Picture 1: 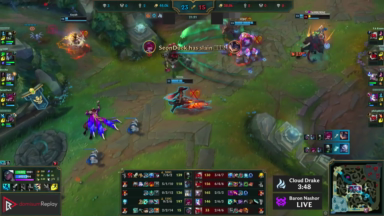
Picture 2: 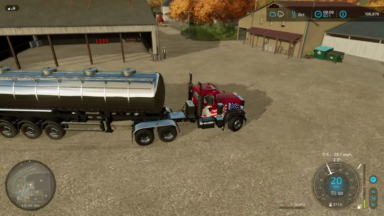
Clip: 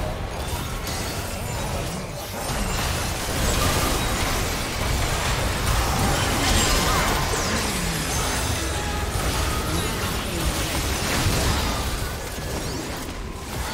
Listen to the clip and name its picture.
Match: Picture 1